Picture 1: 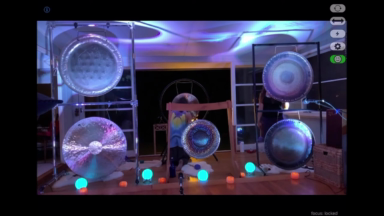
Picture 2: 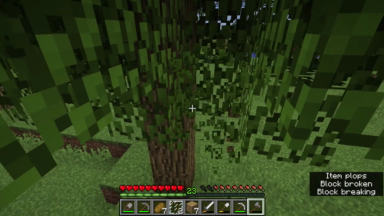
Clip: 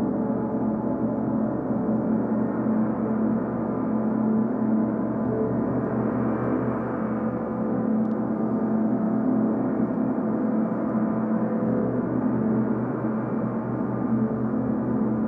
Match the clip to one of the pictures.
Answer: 1